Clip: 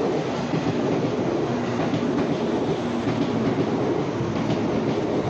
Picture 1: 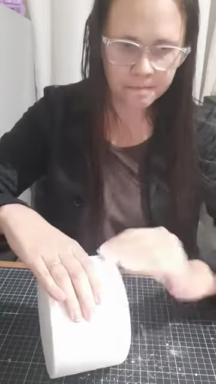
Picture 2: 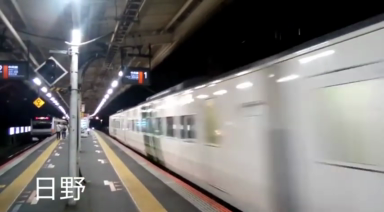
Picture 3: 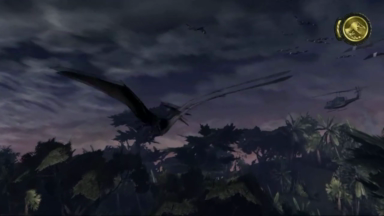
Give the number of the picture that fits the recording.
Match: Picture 2